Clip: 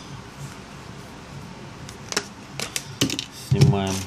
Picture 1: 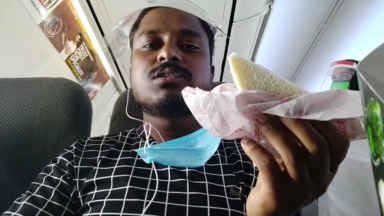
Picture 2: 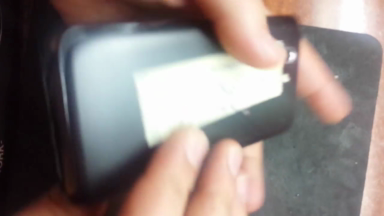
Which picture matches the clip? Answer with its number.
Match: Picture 2